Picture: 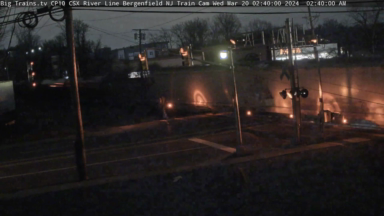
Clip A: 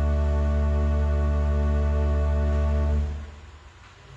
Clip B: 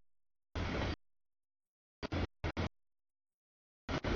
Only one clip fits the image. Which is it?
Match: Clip B